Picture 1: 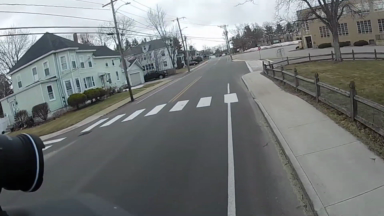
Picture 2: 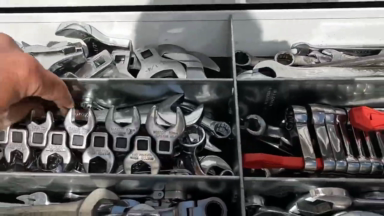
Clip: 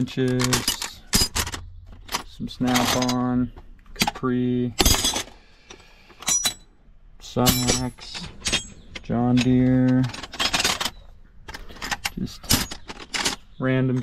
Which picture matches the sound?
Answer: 2